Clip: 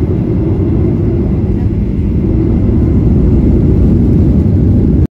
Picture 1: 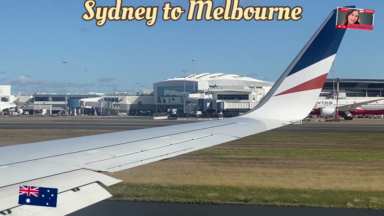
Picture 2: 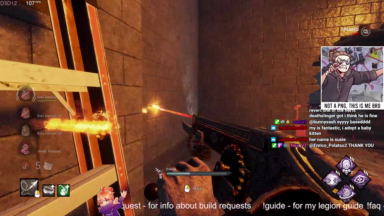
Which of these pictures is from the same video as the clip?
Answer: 1